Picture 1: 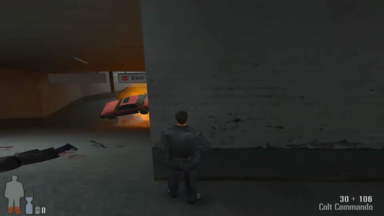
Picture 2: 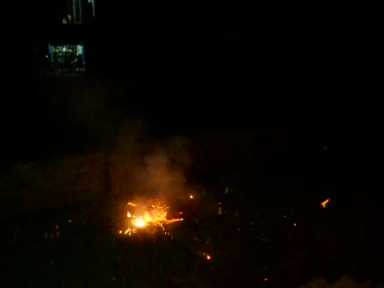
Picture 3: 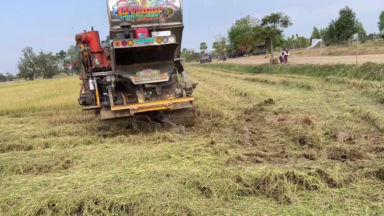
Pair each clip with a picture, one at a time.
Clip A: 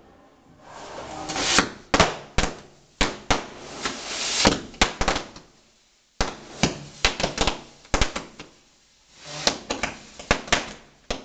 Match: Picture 2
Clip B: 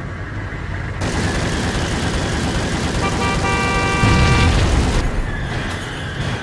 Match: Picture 1